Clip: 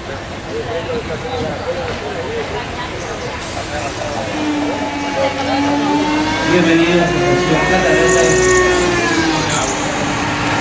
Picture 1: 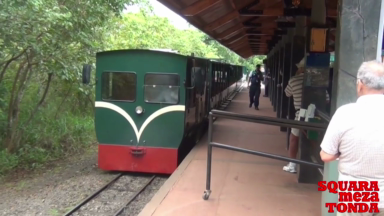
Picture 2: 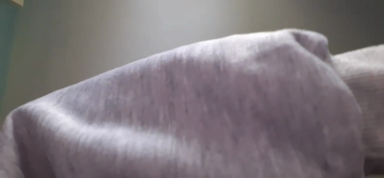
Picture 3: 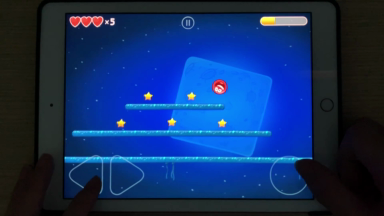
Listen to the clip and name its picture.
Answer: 1